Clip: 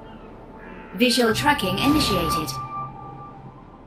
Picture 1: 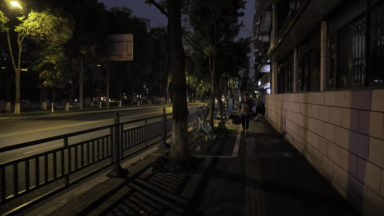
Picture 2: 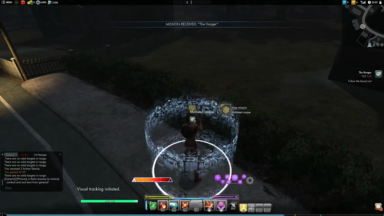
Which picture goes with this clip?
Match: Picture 2